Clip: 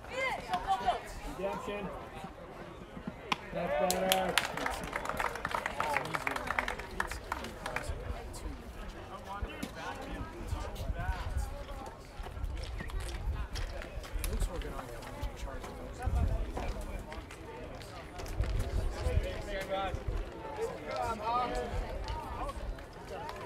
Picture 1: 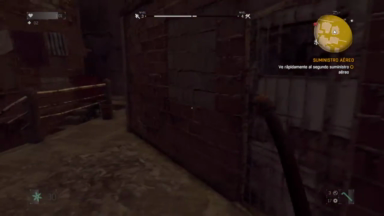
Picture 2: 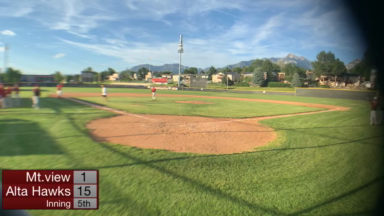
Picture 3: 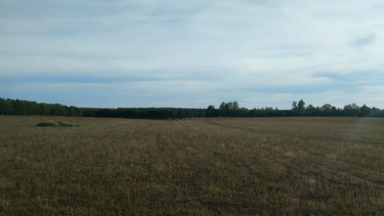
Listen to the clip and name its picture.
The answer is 2